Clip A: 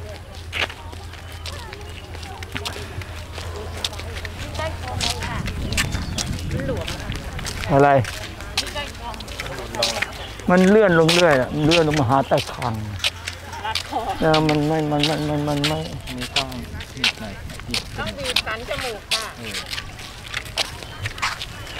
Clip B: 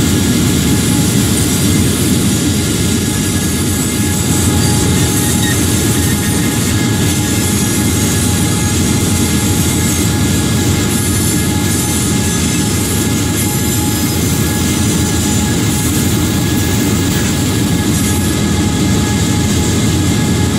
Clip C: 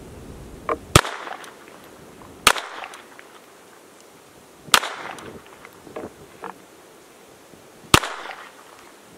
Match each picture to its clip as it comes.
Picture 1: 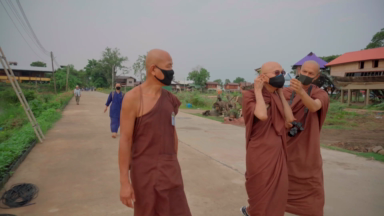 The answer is A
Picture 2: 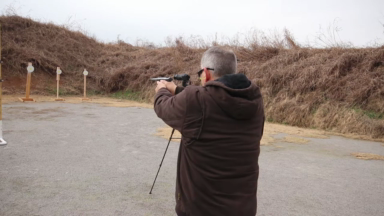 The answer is C